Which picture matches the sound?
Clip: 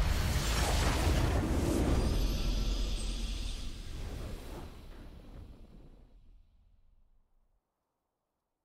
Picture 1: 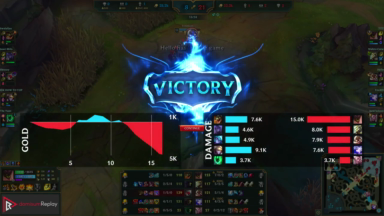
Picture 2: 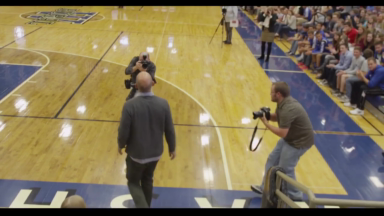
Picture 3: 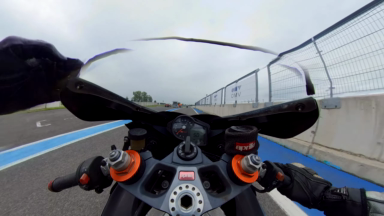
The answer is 1